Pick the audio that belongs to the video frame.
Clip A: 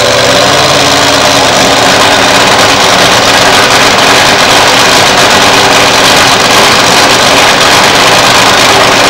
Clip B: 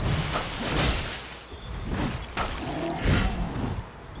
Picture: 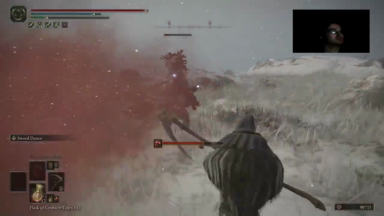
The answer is B